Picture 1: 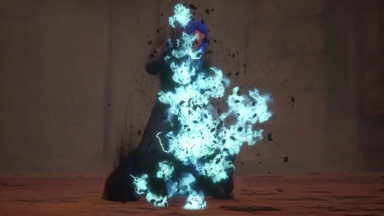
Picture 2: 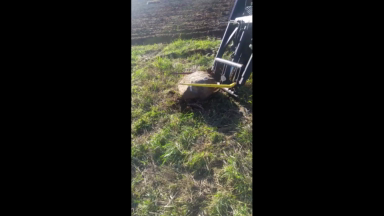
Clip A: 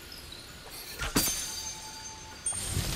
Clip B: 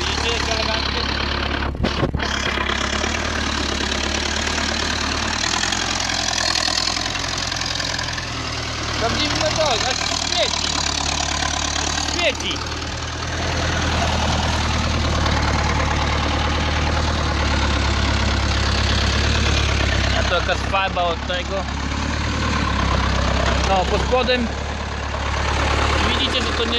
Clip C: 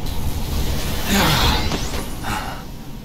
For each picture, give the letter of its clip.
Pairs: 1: C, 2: B